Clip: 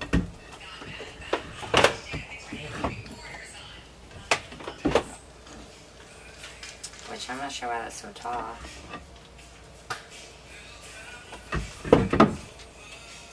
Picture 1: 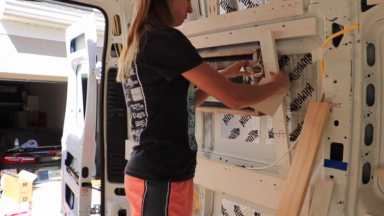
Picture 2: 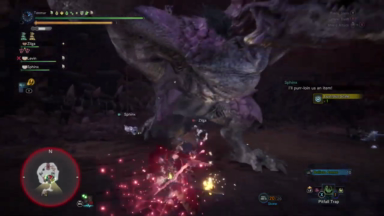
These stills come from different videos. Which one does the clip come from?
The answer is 1